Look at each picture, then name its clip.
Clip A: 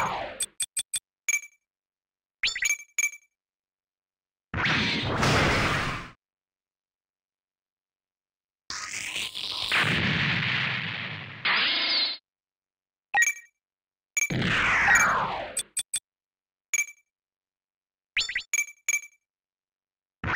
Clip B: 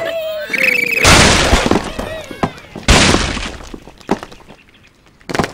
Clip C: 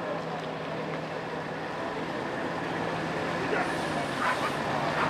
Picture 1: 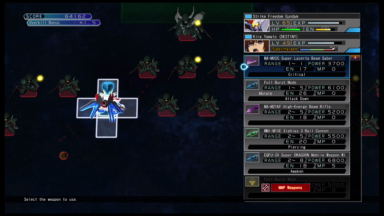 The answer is A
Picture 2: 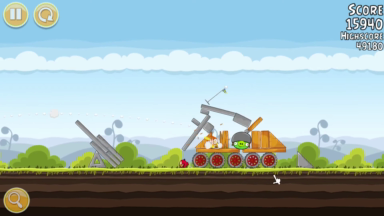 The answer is B